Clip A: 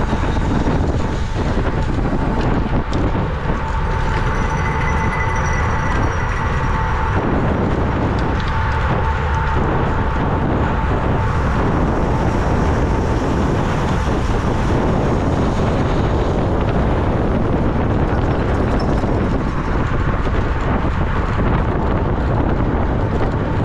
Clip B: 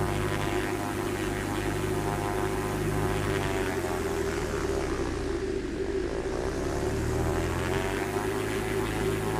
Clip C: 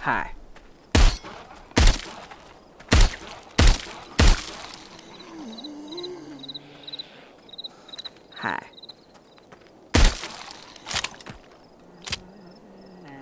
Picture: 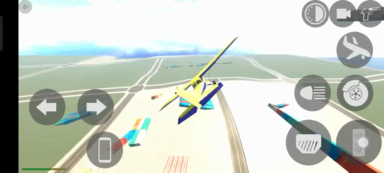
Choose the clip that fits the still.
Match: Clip B